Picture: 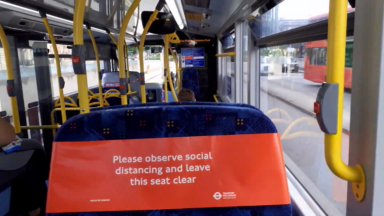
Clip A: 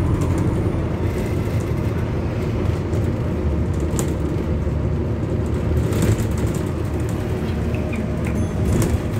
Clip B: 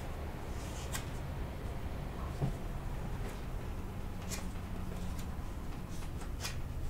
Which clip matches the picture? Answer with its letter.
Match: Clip A